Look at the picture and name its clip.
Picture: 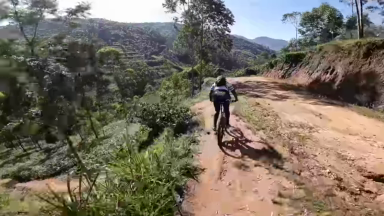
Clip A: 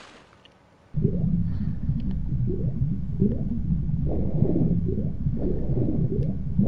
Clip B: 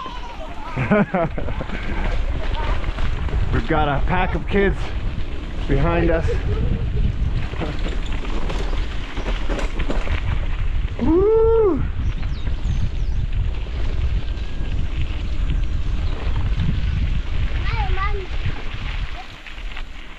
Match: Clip B